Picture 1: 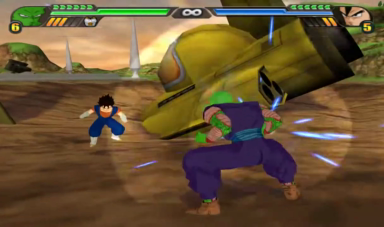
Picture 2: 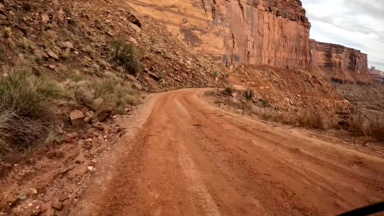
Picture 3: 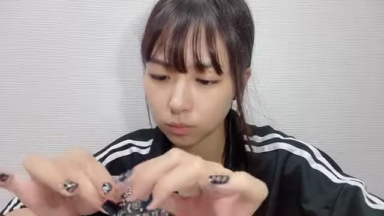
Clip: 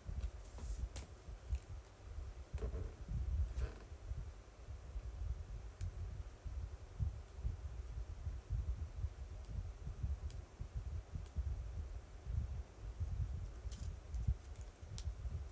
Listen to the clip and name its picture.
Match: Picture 3